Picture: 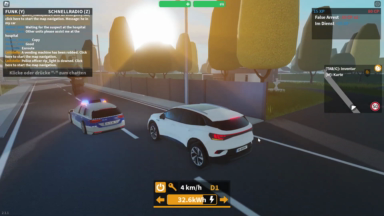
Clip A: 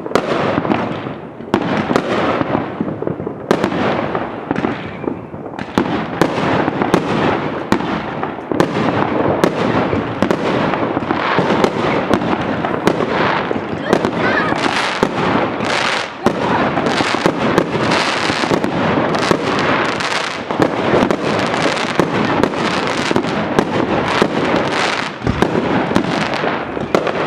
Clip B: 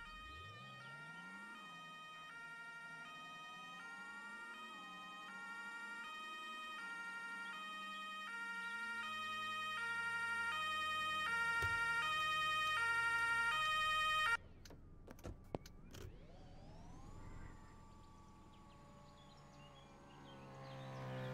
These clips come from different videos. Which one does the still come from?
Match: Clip B